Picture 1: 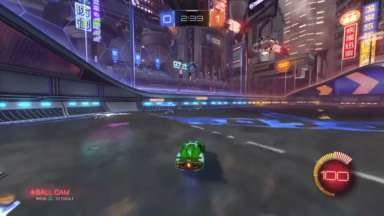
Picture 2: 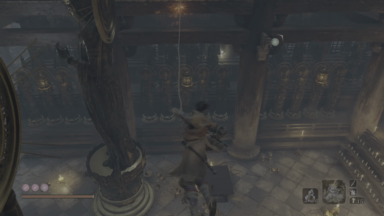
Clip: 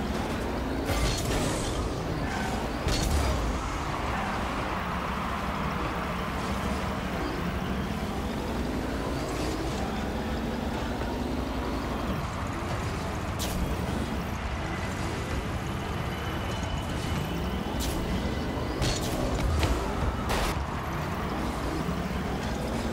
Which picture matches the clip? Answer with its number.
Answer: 1